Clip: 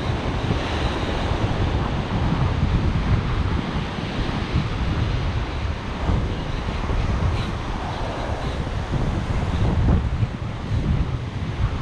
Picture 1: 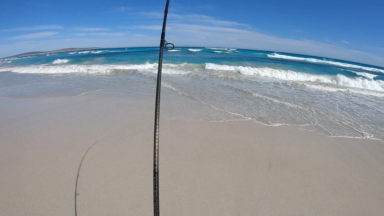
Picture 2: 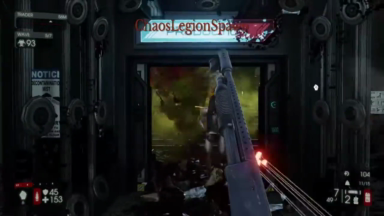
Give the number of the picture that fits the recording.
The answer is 1